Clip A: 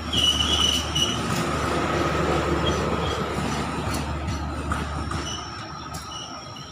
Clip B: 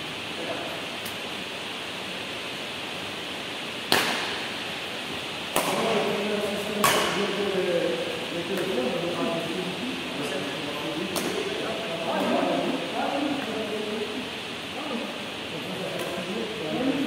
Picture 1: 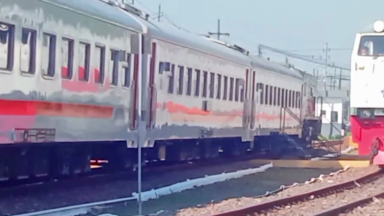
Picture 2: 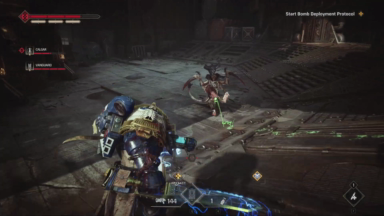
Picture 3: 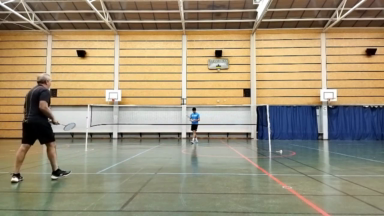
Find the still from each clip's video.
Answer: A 1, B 3